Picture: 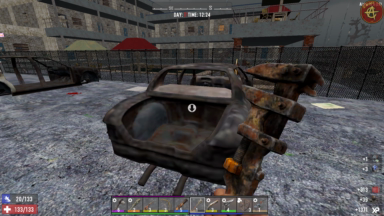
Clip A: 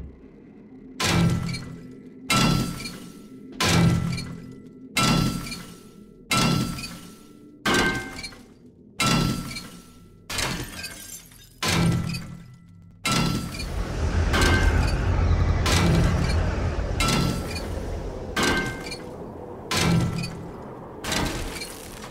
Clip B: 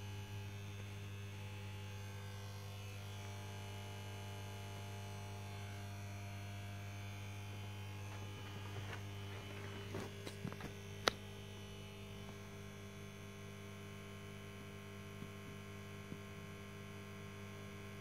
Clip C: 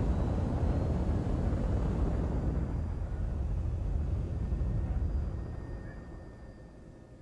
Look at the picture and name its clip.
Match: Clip A